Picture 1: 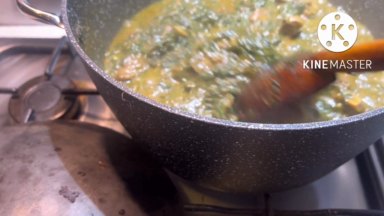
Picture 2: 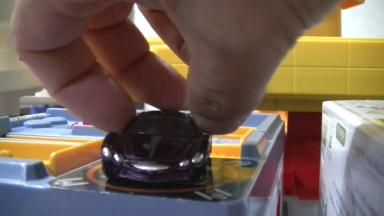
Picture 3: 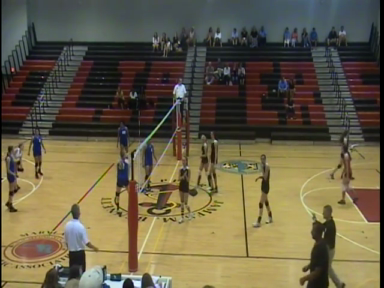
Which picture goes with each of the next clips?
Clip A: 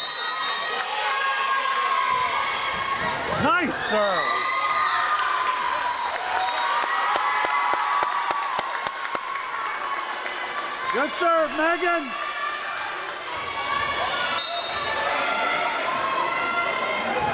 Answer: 3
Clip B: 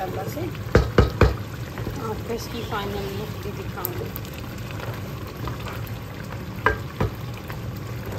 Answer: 1